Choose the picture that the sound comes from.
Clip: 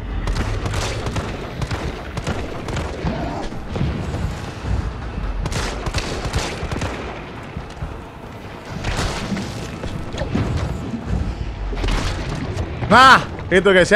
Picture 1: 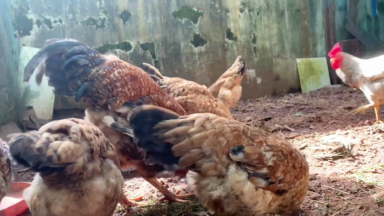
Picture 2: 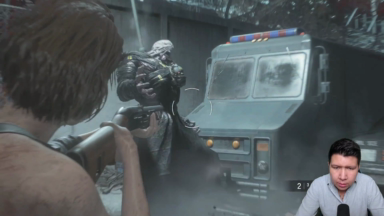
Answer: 2